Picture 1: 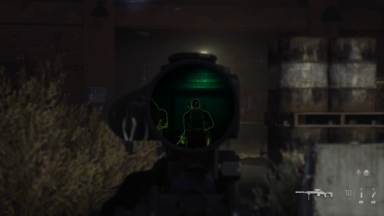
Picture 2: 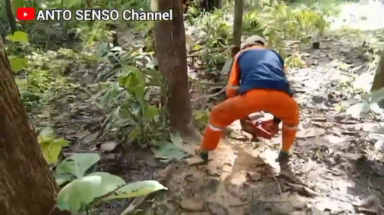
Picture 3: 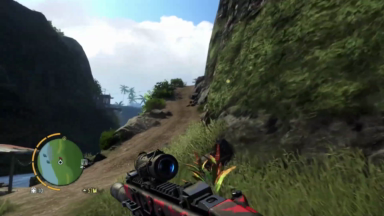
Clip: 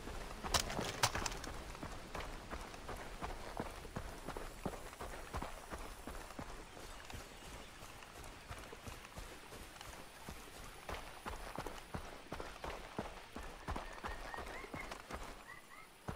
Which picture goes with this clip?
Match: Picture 3